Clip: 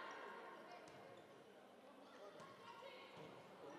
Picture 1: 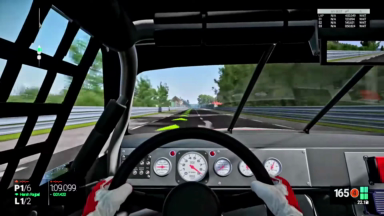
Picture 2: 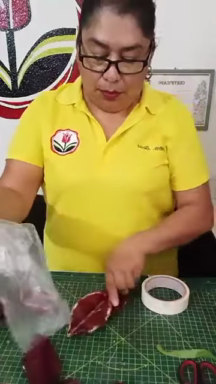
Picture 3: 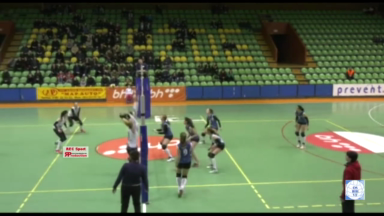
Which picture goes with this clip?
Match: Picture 3